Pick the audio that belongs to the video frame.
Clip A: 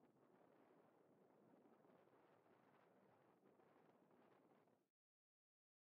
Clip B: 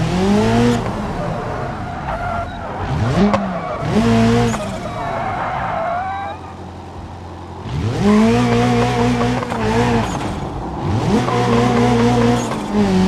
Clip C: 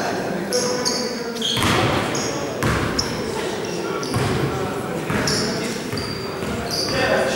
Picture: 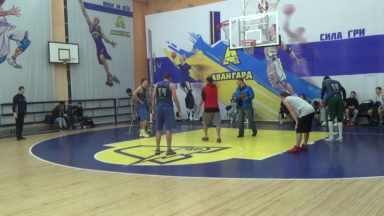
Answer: C